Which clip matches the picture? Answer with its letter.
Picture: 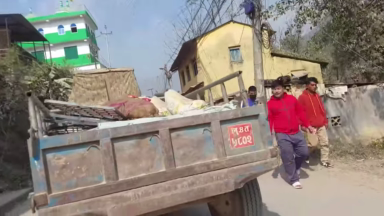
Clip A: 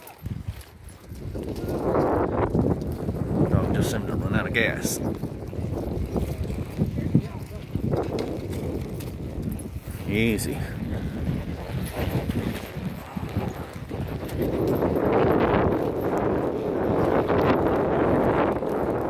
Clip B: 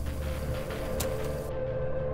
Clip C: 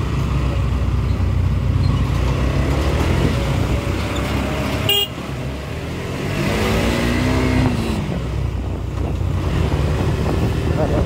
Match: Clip C